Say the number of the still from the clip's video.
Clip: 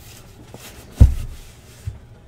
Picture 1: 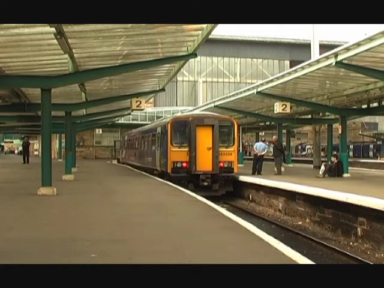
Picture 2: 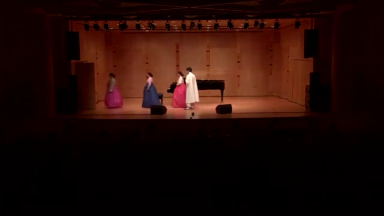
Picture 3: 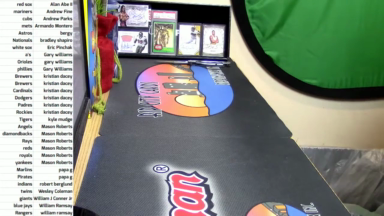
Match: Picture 3